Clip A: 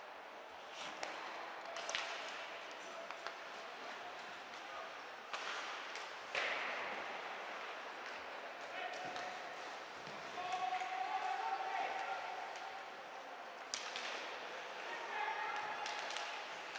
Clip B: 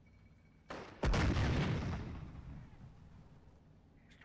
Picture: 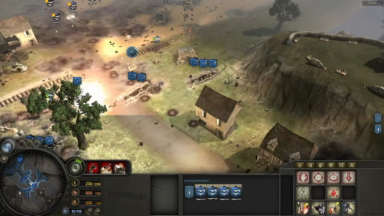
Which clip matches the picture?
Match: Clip B